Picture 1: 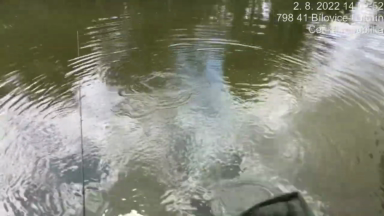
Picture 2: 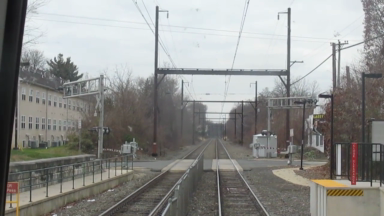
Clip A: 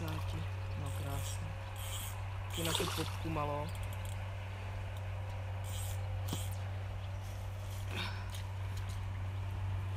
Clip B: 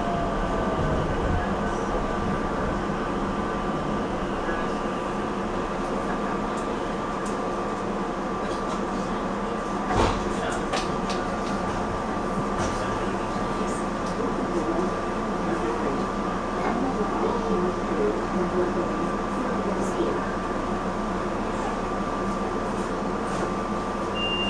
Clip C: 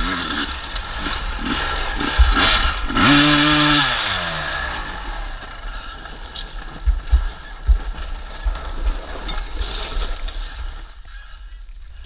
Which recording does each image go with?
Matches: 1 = A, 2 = B